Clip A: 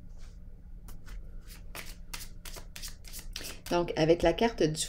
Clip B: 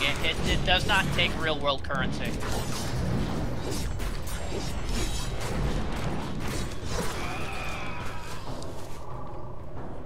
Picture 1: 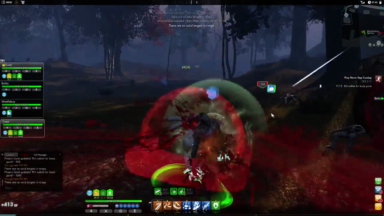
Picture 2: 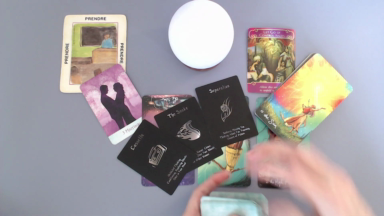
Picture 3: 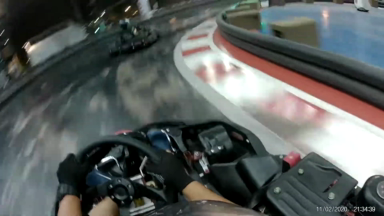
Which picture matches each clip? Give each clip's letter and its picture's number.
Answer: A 2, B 1